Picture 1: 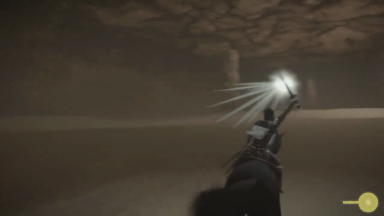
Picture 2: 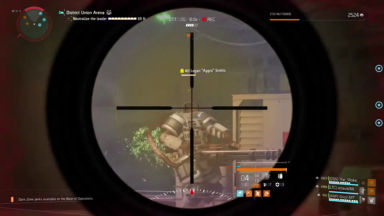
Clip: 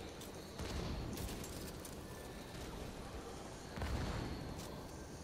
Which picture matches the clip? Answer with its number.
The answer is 2